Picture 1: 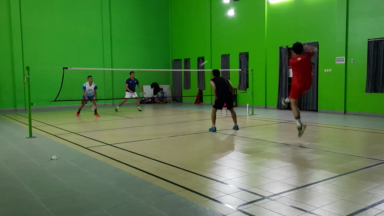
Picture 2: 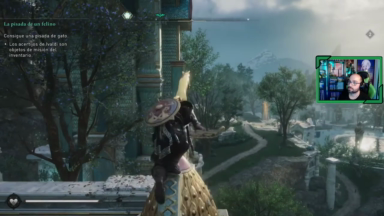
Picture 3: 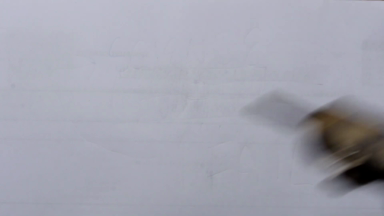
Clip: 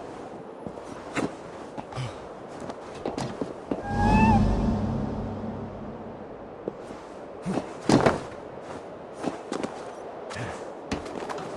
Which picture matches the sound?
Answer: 2